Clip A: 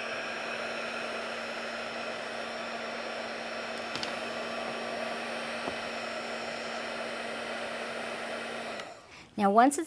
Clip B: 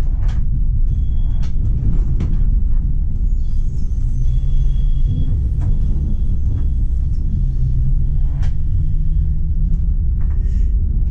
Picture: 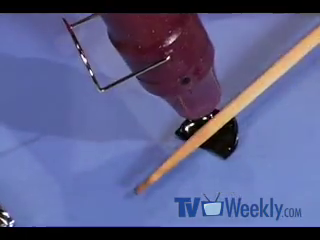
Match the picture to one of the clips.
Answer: A